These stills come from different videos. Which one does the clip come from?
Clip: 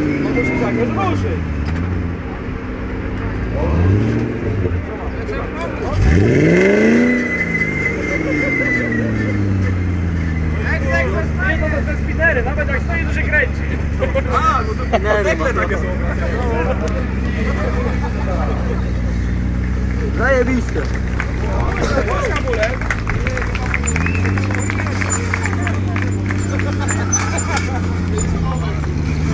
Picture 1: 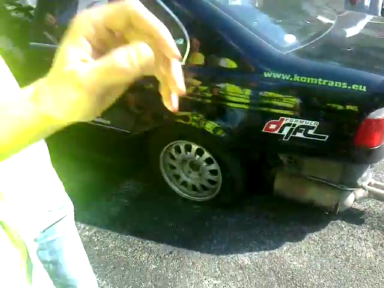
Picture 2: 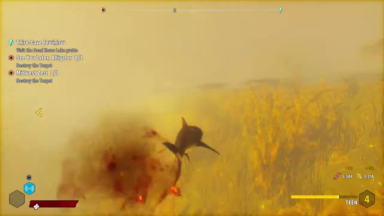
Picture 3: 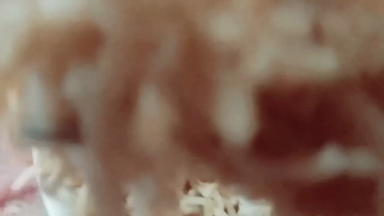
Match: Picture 1